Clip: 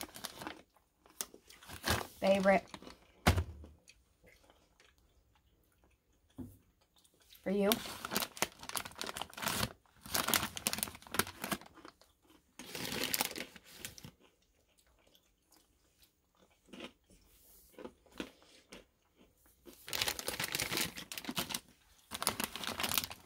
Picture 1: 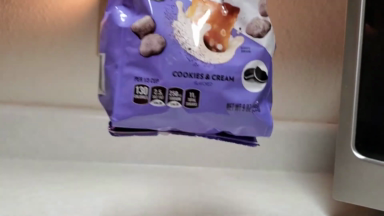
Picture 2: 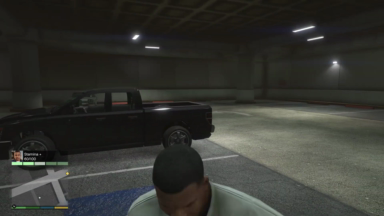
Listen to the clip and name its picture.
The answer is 1